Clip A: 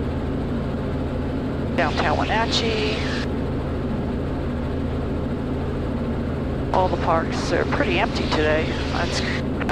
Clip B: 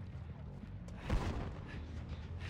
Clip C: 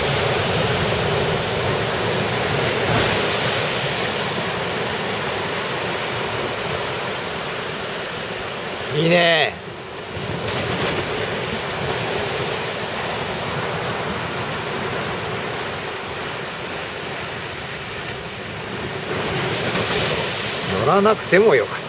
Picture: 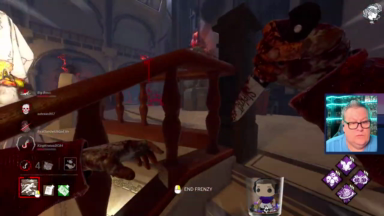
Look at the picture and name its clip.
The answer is B